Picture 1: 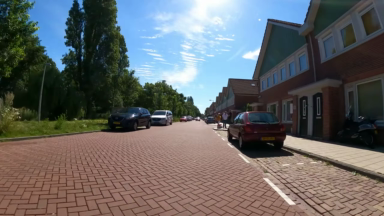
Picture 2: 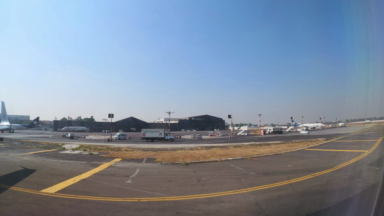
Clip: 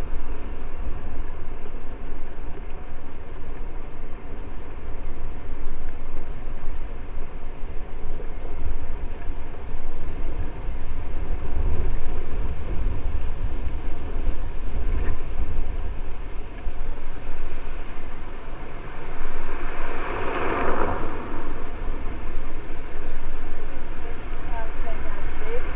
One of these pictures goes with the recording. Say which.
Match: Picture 1